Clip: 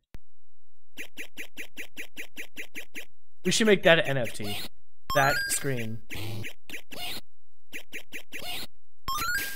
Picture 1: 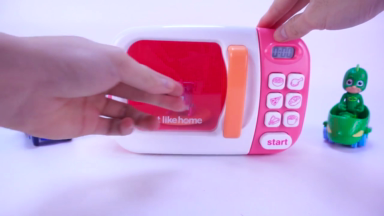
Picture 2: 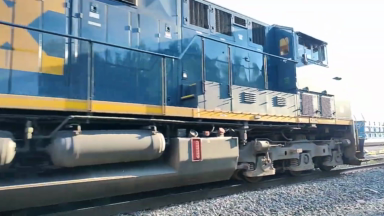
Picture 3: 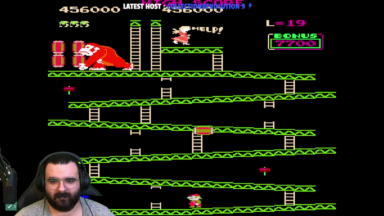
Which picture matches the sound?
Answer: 3